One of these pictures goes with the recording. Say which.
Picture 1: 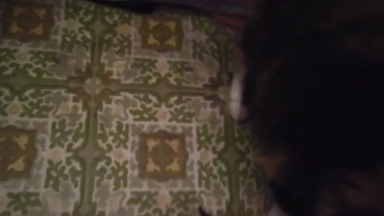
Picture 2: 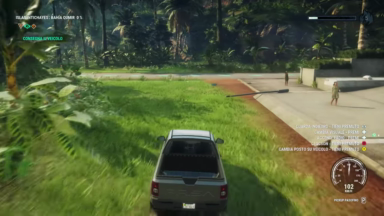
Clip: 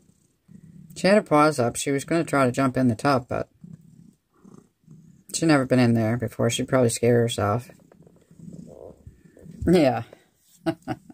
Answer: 1